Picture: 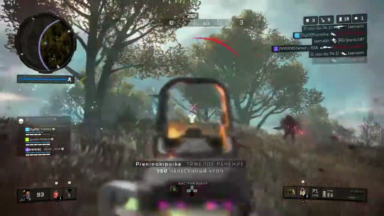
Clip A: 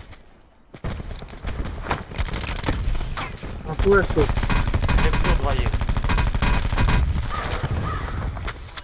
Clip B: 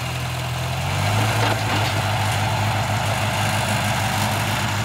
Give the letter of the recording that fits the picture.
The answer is A